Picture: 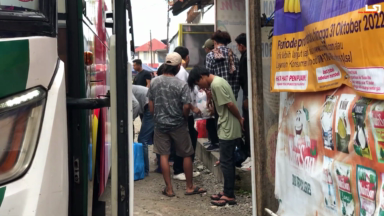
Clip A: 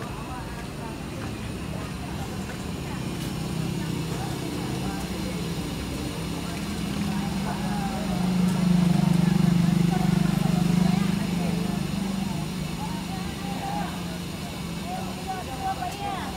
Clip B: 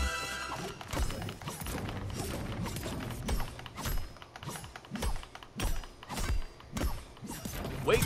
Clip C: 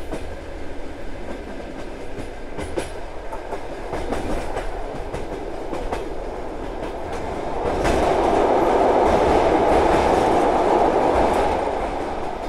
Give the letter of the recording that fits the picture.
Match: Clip A